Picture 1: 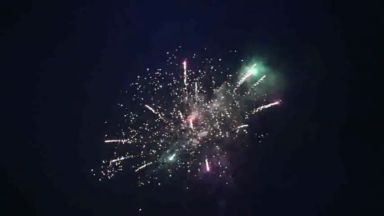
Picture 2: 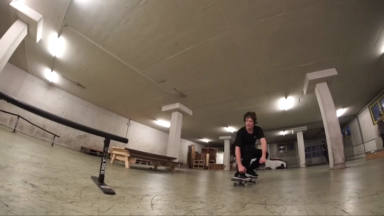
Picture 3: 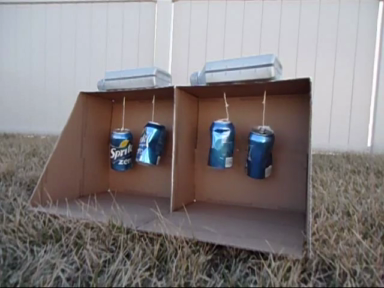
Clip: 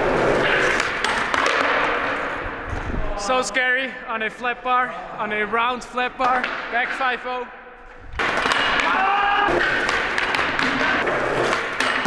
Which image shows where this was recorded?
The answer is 2